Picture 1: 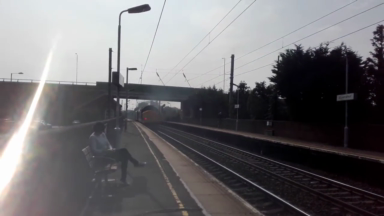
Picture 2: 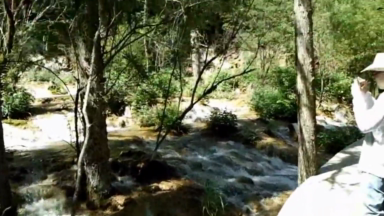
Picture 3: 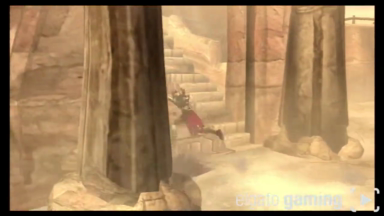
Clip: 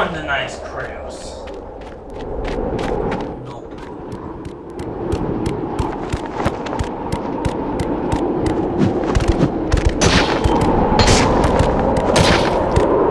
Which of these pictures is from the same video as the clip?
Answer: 3